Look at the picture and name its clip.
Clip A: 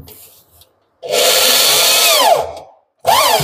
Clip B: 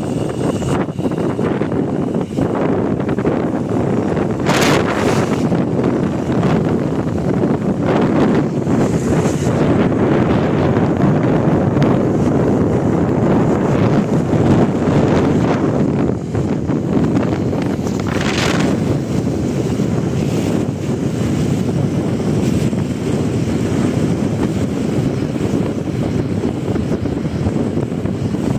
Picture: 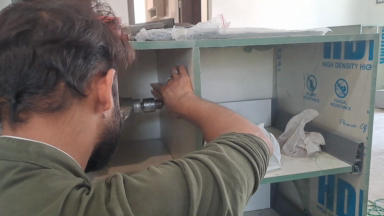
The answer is A